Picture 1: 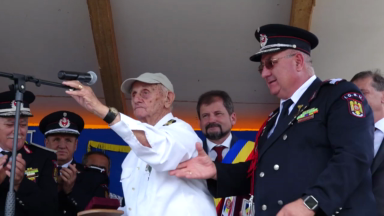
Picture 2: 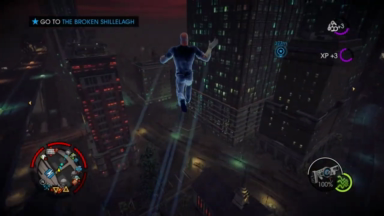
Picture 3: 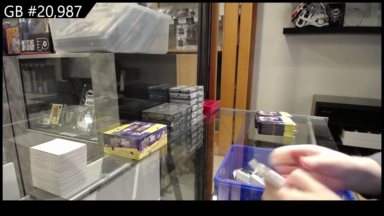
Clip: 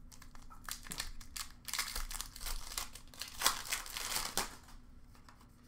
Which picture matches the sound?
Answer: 3